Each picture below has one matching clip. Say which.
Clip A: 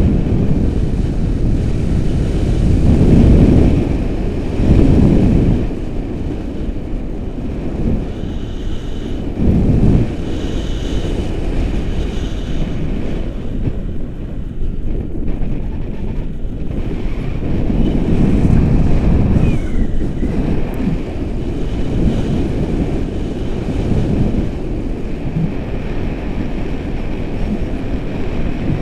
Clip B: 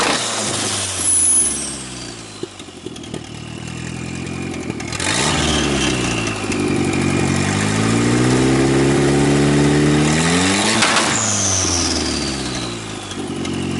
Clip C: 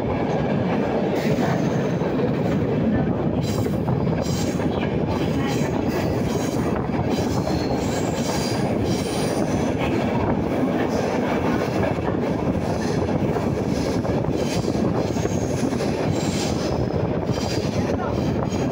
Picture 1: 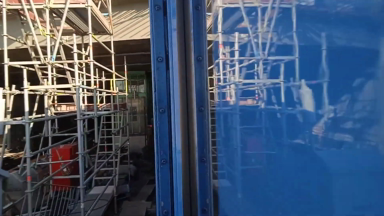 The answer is C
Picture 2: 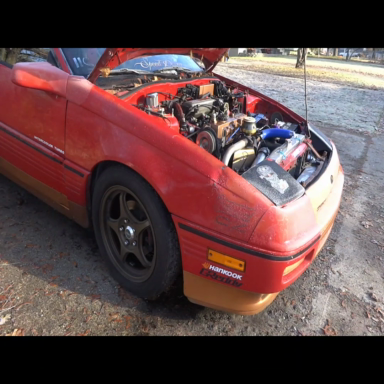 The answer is B